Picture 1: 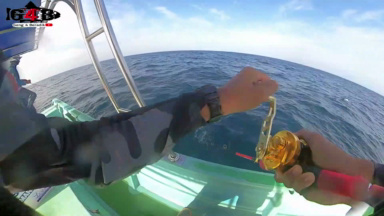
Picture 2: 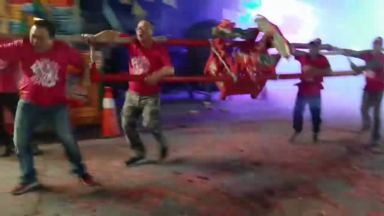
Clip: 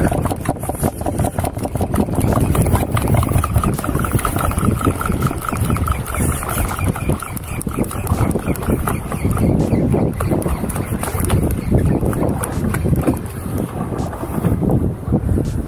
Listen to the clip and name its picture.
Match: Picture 1